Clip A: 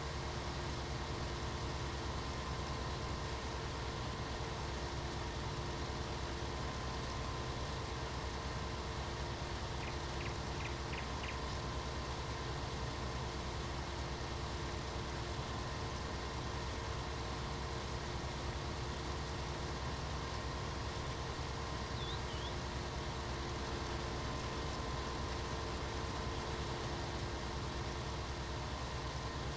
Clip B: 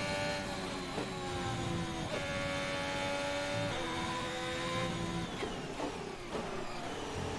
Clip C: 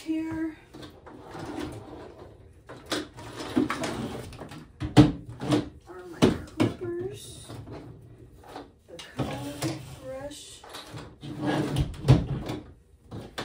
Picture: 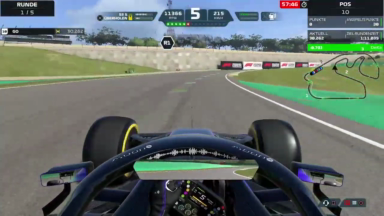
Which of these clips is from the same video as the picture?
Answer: B